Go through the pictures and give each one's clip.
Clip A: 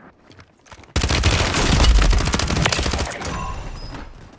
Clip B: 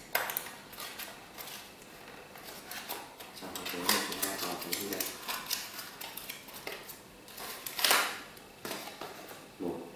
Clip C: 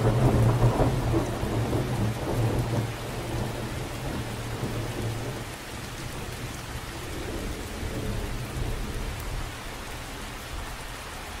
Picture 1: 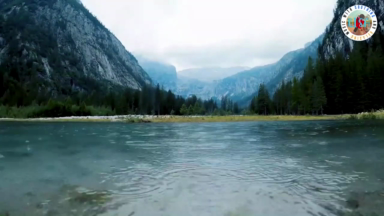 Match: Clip C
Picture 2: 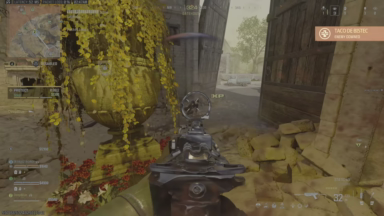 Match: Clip A